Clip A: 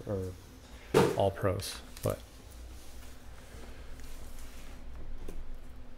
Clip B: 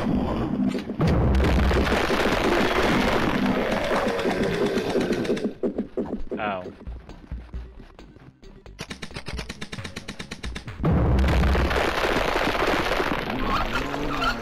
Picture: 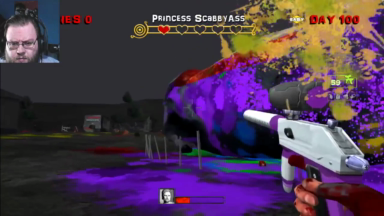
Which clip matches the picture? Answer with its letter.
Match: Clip B